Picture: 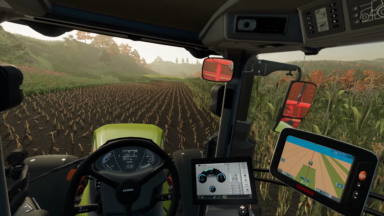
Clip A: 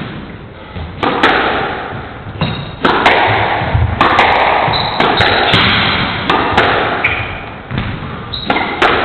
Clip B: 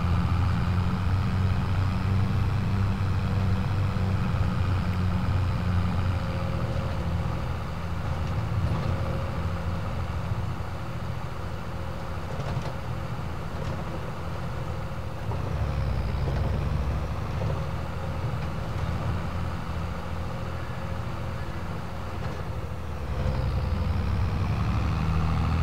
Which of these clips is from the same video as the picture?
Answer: B